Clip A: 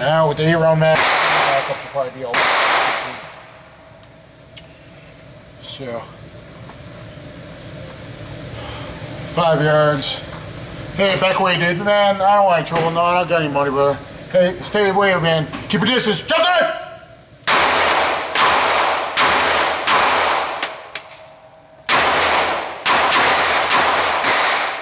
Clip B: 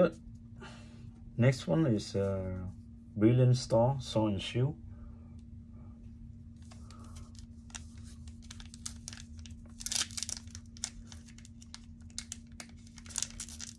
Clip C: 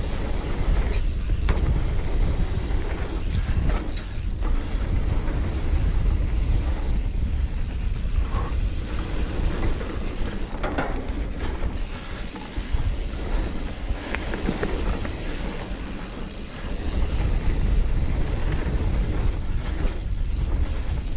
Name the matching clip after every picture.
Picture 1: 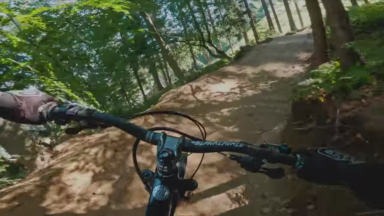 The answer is C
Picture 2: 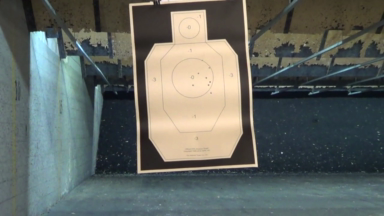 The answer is A